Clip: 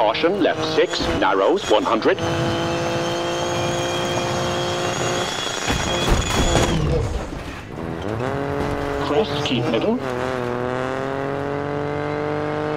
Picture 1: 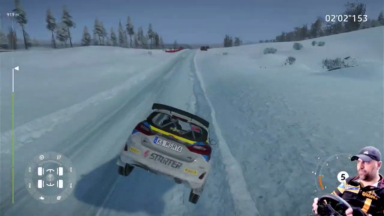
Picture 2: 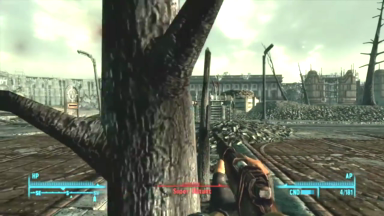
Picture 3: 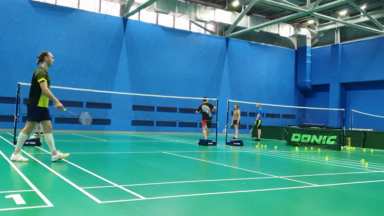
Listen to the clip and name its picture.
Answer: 1